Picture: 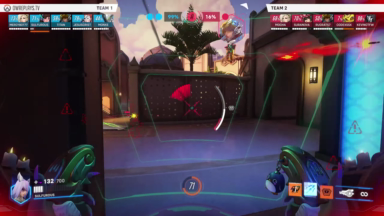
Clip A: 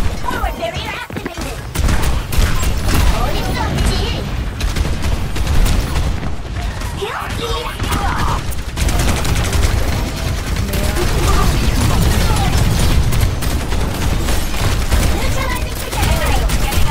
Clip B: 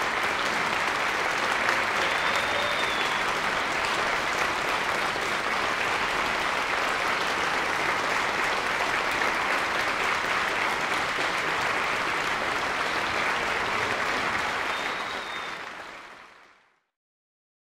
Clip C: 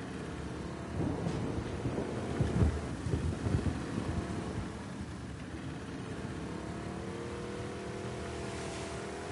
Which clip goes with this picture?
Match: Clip A